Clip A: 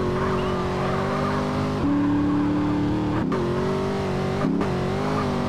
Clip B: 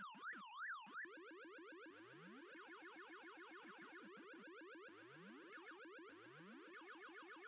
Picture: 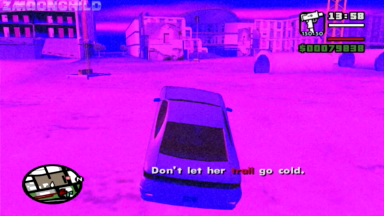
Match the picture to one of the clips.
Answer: A